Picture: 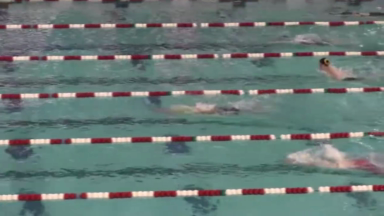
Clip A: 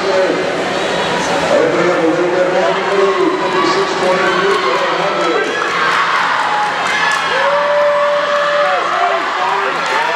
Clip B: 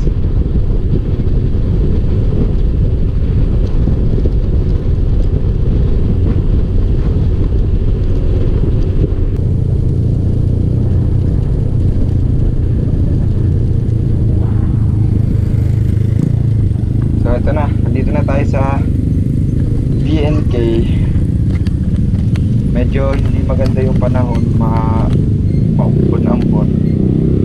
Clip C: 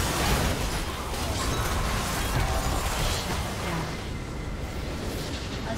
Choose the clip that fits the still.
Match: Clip A